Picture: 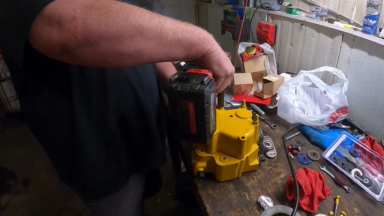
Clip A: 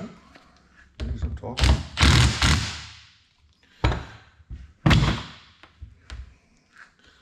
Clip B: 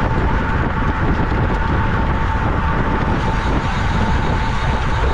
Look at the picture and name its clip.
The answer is A